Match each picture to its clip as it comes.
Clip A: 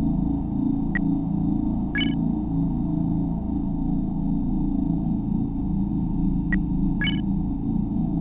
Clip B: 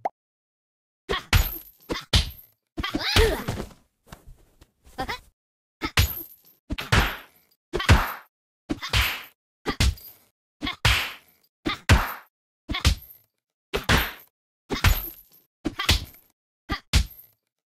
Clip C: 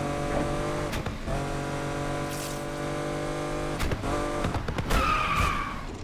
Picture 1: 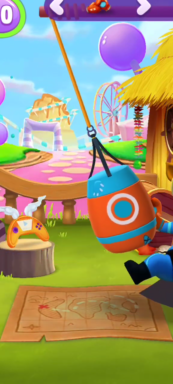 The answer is B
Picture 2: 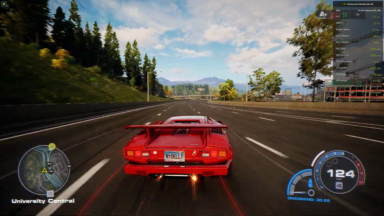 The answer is C